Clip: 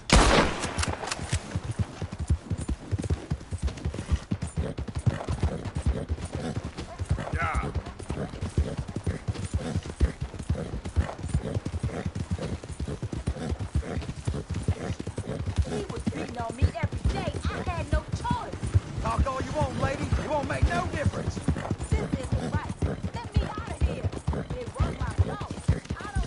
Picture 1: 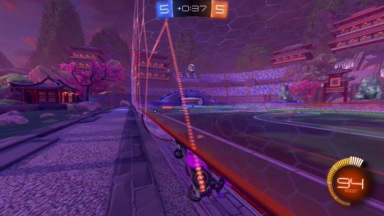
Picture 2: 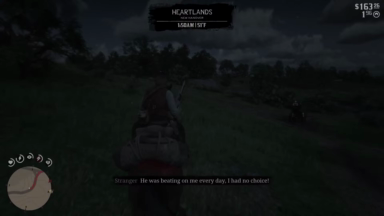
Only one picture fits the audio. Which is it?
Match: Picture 2